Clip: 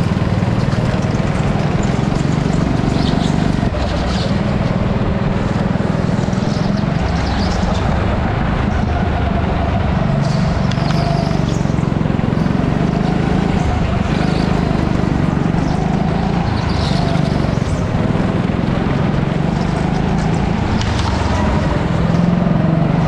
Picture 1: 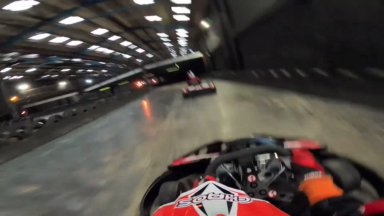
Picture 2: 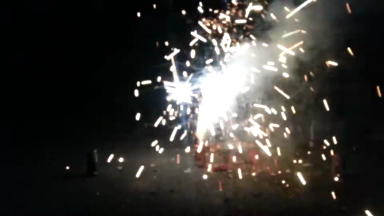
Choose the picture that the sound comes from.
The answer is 1